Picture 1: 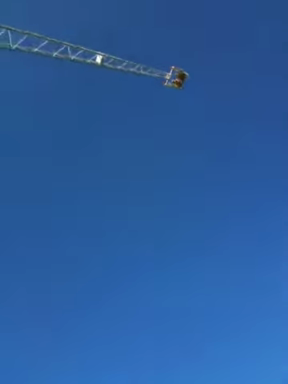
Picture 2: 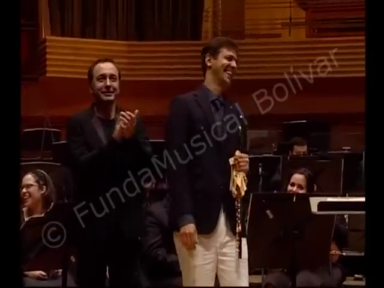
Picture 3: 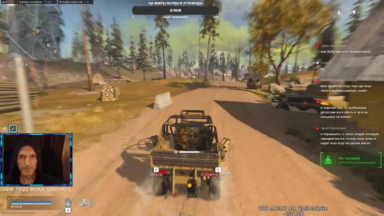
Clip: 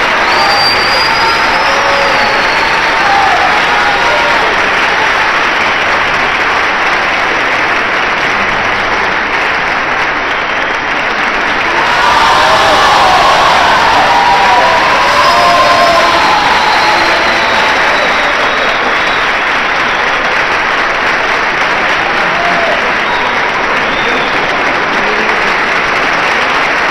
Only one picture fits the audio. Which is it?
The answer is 2